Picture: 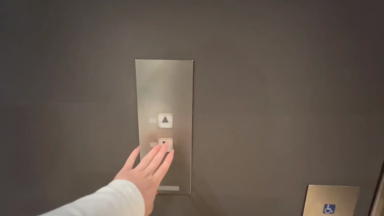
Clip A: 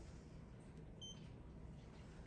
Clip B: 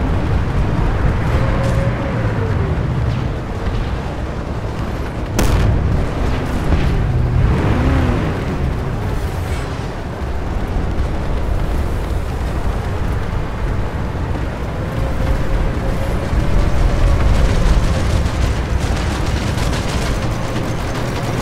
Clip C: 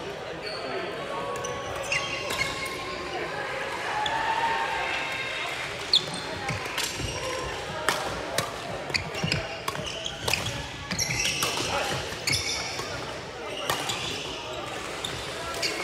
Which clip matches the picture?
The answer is A